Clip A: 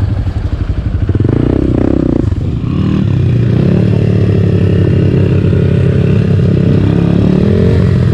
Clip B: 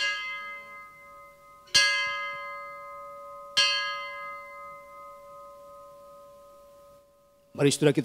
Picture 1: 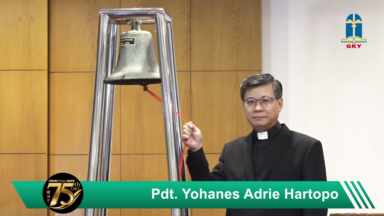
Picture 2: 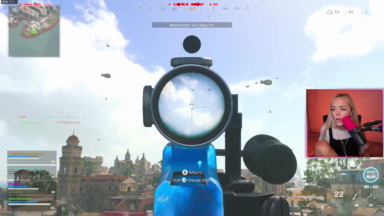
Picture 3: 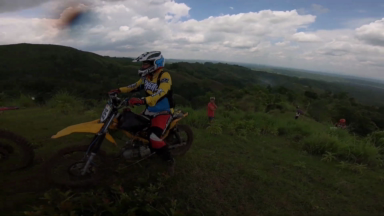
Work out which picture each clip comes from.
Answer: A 3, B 1